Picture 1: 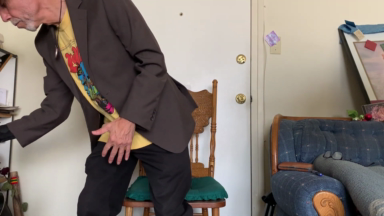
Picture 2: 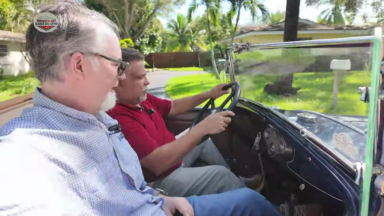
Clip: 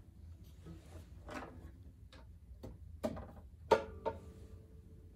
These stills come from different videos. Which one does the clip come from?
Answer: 1